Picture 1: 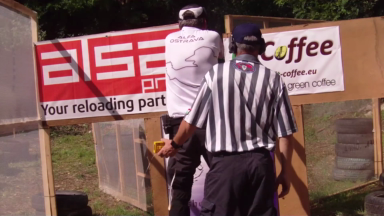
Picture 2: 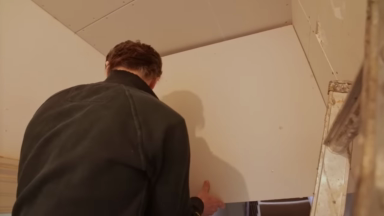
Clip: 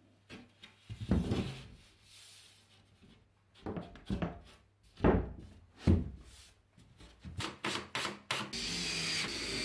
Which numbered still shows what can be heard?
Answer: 2